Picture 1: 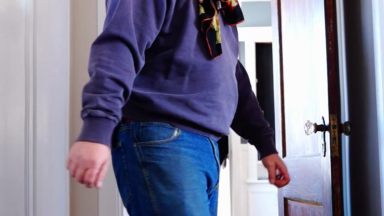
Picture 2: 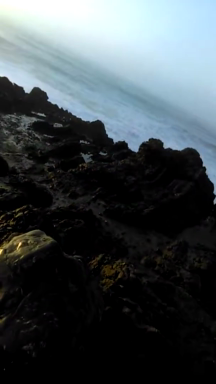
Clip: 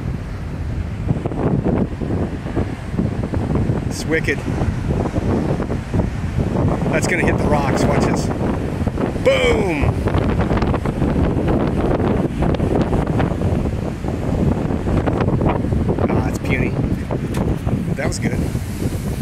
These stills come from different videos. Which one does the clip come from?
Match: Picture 2